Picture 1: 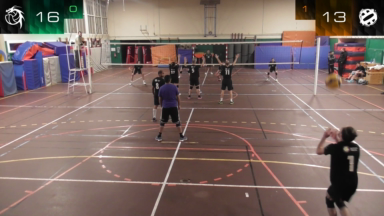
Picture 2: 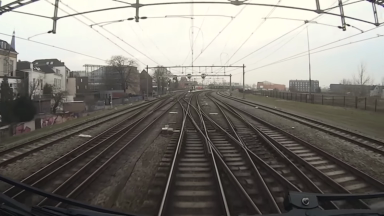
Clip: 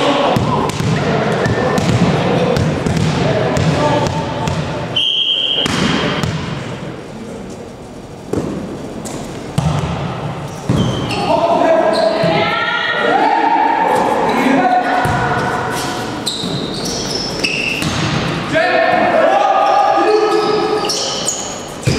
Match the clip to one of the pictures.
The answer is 1